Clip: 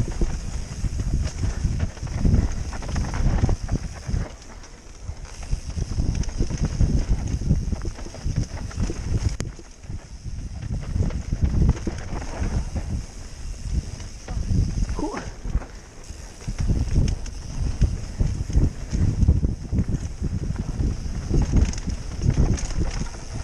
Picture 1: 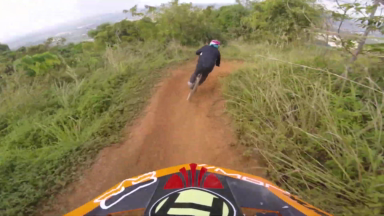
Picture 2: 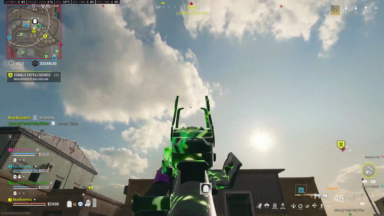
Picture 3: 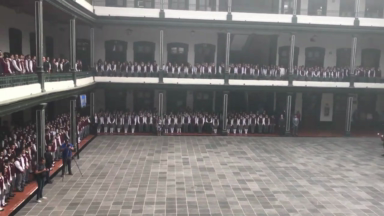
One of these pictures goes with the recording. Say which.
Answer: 1